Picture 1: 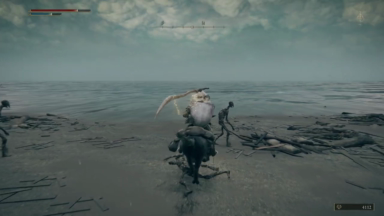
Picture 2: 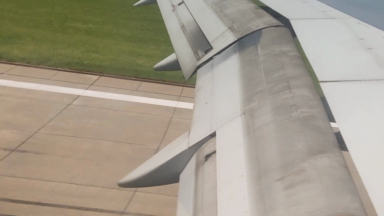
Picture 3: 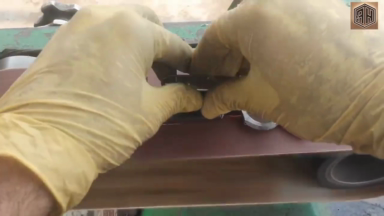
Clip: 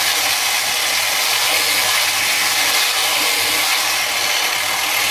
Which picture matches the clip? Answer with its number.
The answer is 3